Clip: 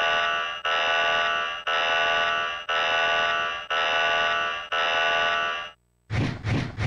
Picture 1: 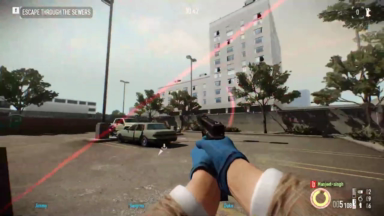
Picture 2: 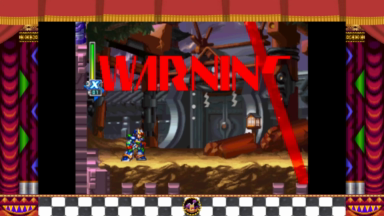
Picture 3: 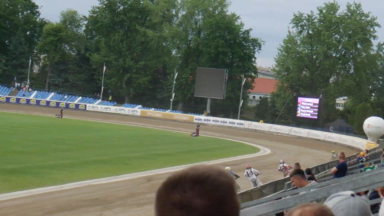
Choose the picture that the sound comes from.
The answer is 2